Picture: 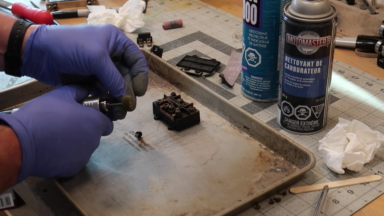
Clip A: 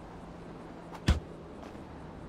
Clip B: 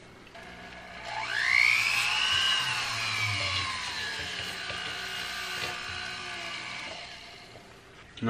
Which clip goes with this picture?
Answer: B